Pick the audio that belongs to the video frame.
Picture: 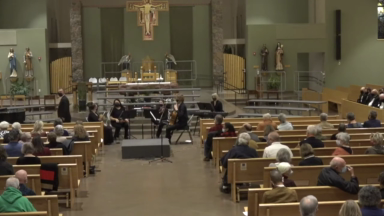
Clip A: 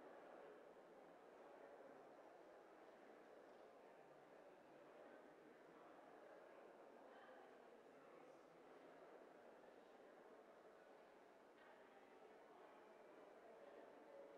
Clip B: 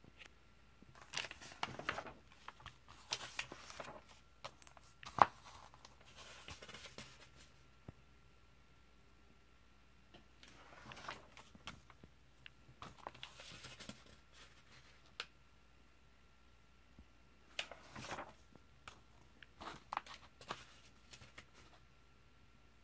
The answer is A